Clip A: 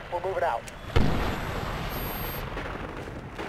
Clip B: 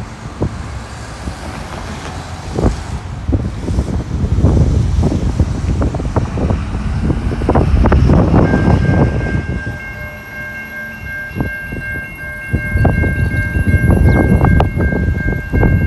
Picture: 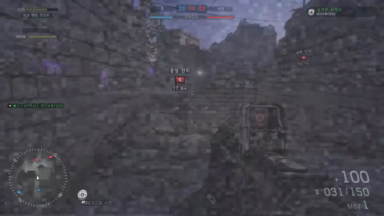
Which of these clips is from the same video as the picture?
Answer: A